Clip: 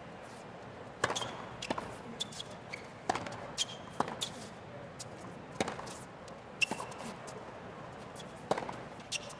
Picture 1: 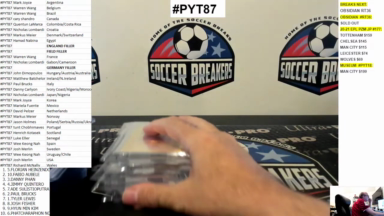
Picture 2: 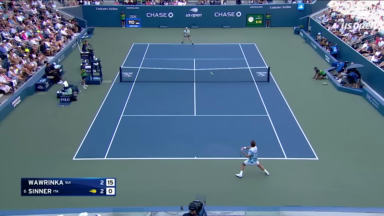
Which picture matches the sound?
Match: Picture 2